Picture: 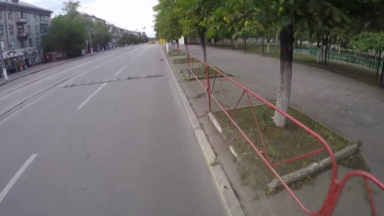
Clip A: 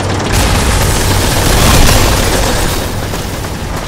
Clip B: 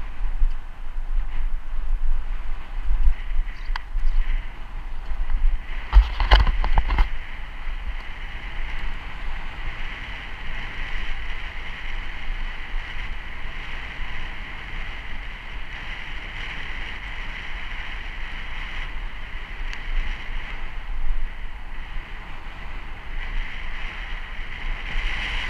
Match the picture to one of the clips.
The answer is B